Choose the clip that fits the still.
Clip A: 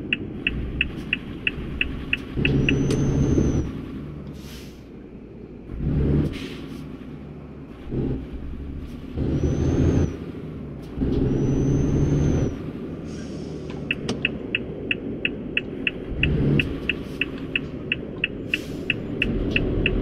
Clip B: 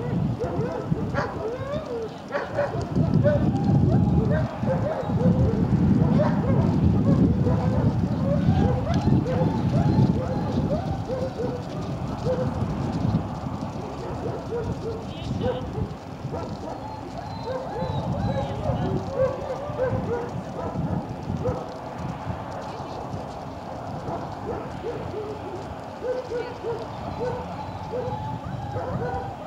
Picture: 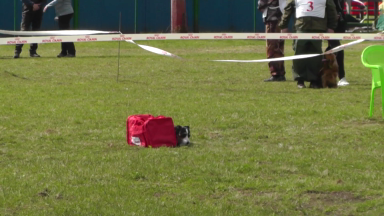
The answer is B